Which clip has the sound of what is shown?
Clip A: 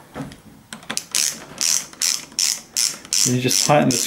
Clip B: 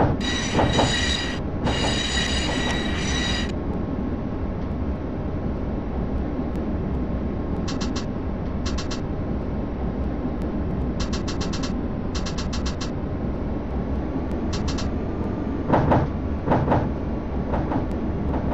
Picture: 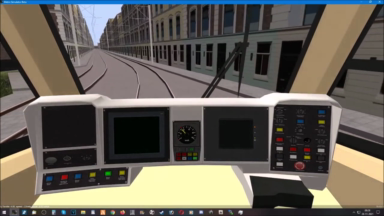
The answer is B